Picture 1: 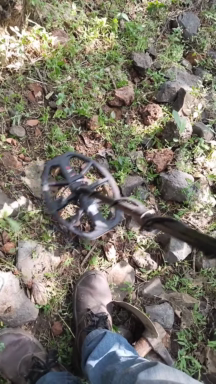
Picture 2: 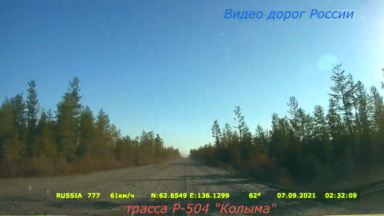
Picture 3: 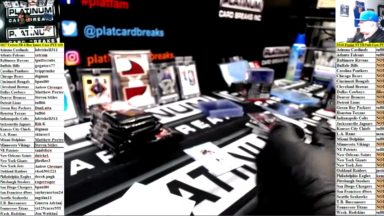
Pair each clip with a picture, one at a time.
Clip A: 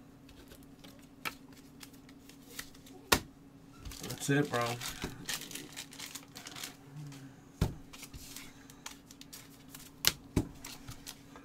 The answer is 3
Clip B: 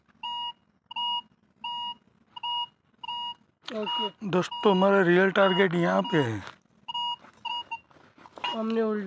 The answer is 1